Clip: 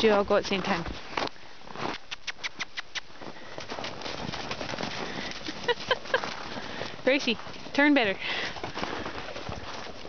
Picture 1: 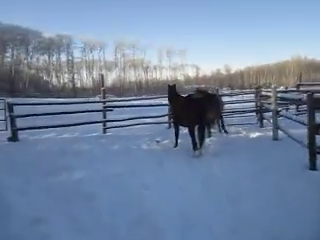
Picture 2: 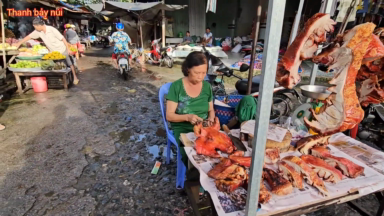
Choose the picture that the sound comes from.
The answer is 1